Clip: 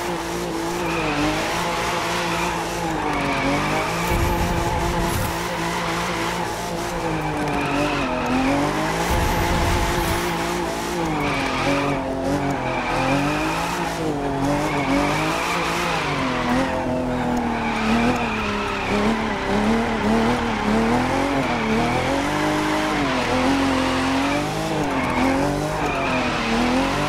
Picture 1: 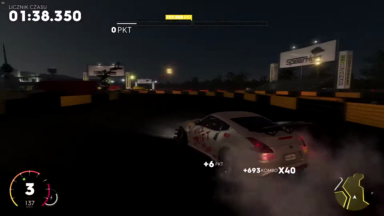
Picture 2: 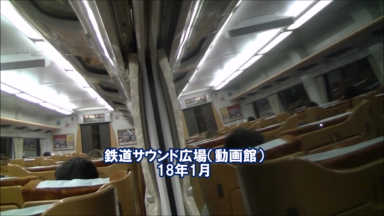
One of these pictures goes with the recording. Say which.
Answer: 1